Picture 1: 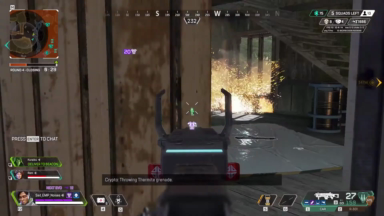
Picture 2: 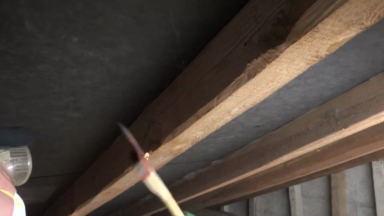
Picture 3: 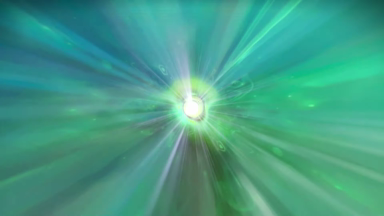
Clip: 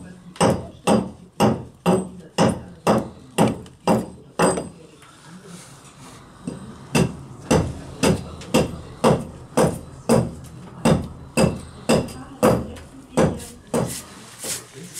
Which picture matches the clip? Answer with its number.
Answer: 2